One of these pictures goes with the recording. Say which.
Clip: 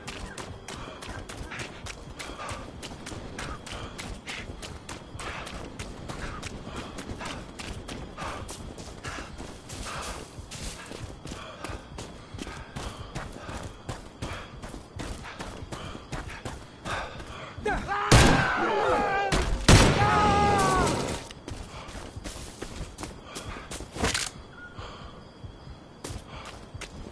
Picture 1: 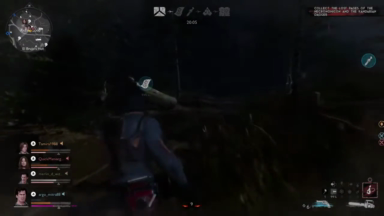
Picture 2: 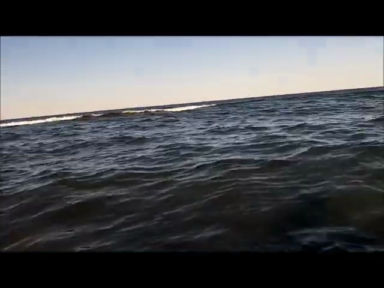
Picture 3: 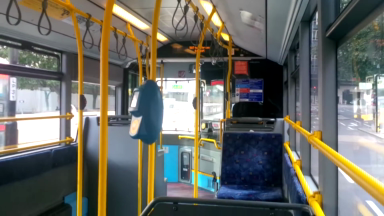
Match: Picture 1